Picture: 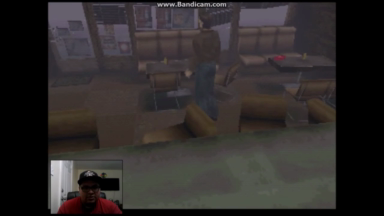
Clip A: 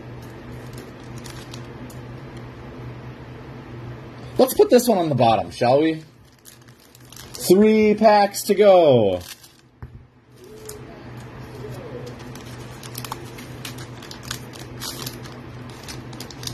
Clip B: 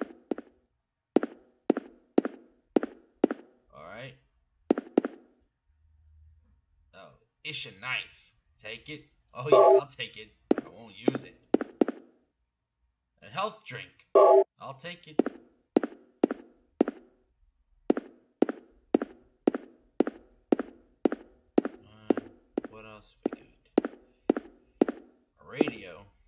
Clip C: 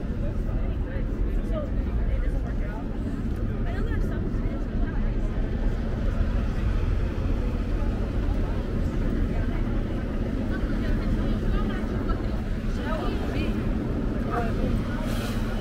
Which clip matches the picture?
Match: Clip B